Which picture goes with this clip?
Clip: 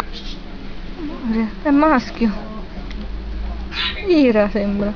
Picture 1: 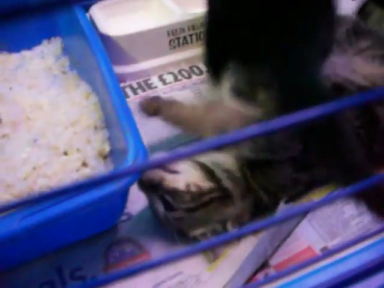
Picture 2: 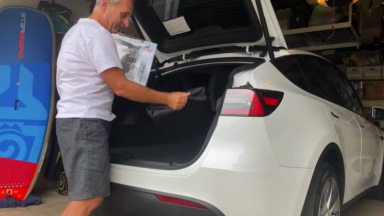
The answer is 1